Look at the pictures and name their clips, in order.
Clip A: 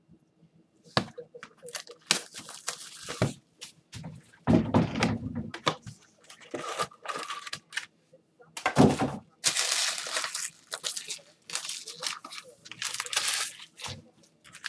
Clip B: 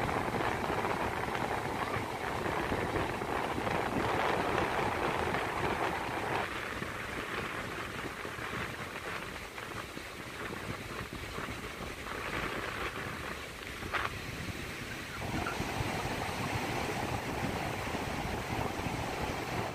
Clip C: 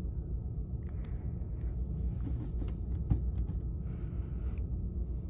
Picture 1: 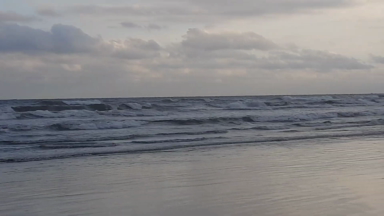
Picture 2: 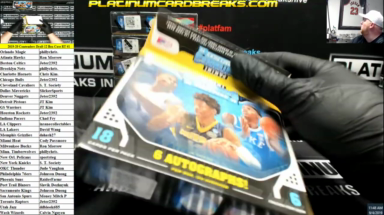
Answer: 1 B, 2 A